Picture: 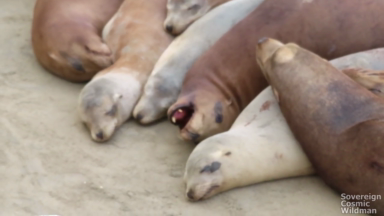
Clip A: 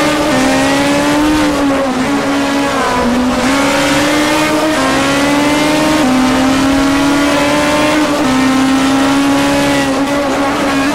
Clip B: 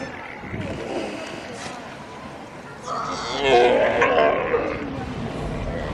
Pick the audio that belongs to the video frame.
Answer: B